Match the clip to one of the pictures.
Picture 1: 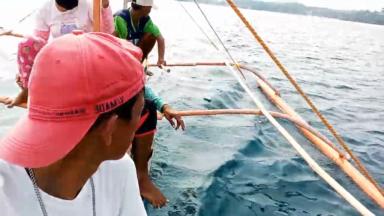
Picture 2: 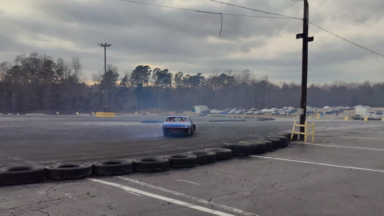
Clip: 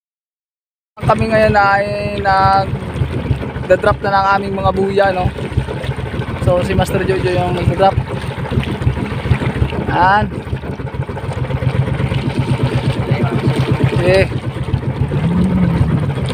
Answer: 1